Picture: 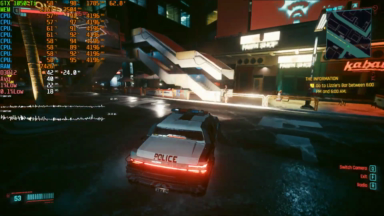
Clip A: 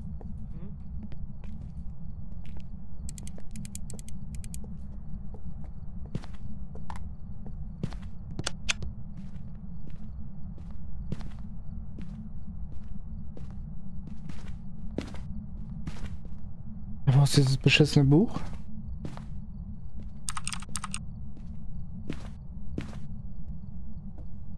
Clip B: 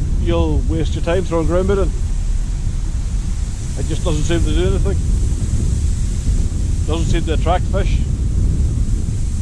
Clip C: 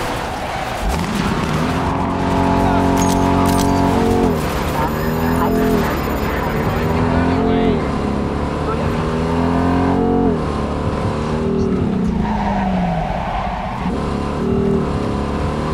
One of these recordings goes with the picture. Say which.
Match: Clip C